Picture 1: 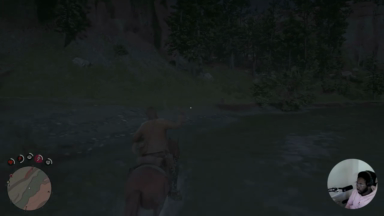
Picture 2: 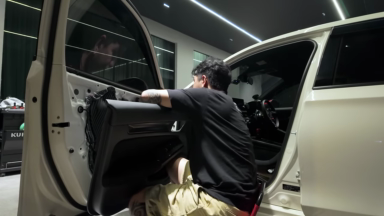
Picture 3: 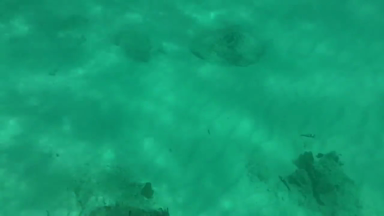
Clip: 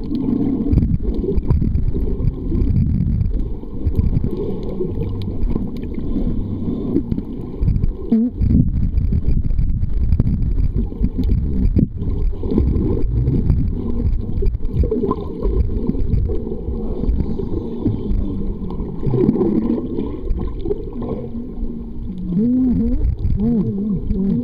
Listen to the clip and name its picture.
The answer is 3